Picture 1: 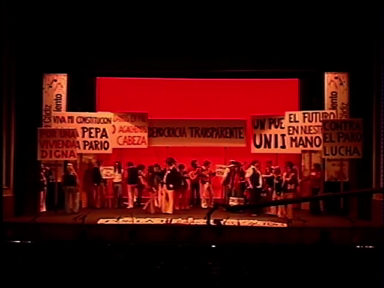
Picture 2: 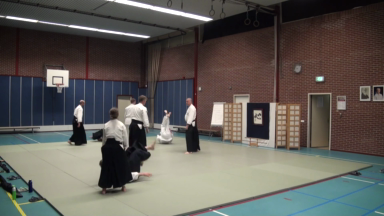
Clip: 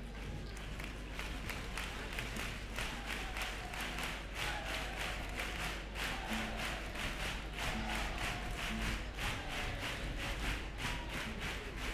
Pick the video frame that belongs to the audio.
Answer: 1